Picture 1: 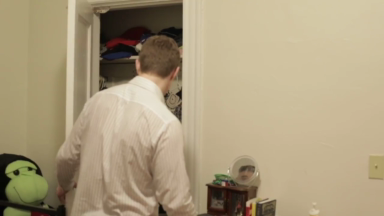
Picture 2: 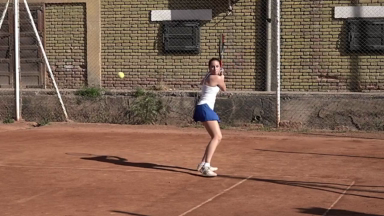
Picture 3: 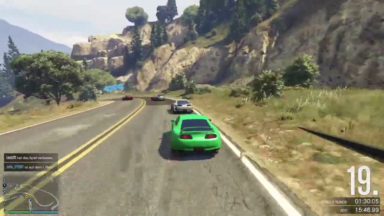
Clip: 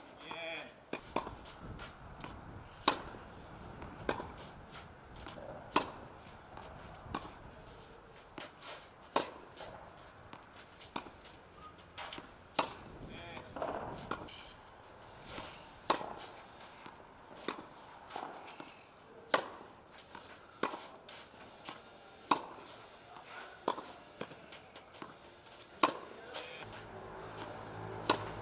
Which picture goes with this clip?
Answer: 2